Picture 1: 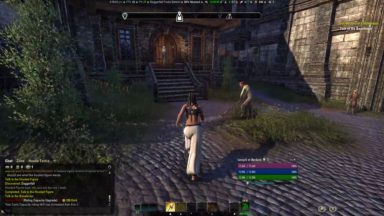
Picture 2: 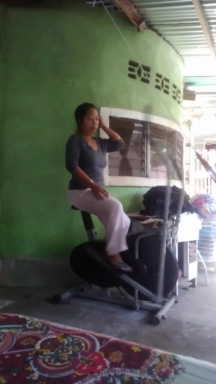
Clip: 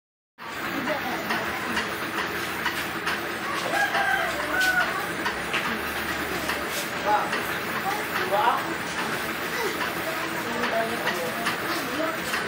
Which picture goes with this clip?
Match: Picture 2